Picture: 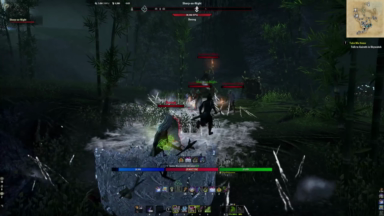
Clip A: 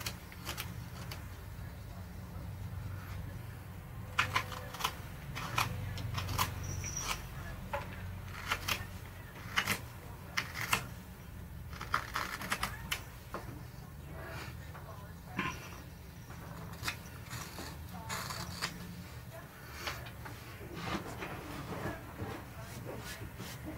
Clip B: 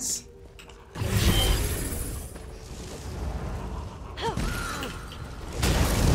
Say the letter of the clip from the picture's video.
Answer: B